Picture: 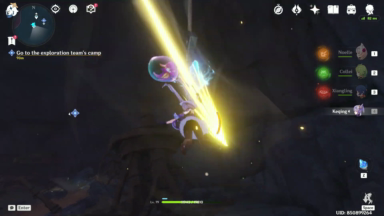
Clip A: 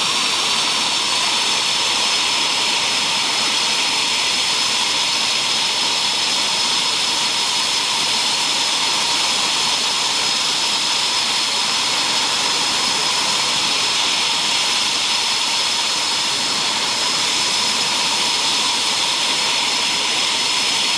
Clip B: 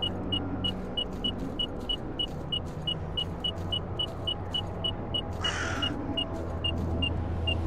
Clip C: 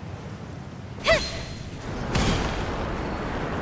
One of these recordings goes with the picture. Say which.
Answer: C